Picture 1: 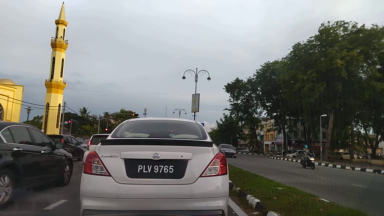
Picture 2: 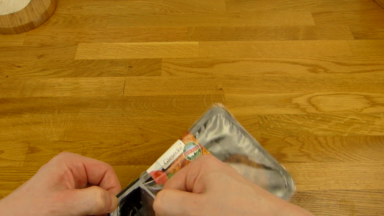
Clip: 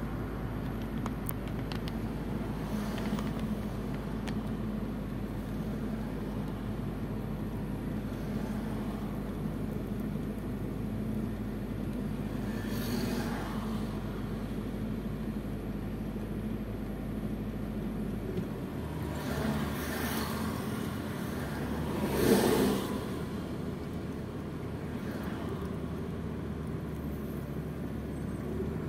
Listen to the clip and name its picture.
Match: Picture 1